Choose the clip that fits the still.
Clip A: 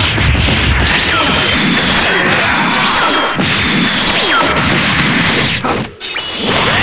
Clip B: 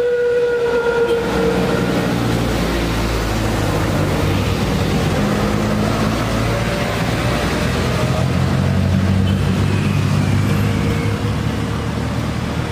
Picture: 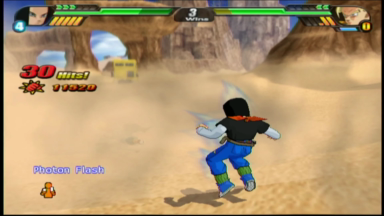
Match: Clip A